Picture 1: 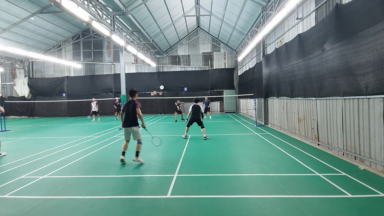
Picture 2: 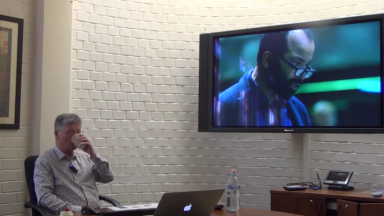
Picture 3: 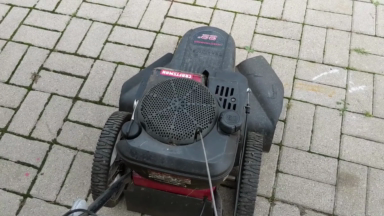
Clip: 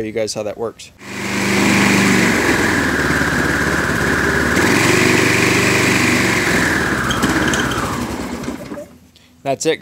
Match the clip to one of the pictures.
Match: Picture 3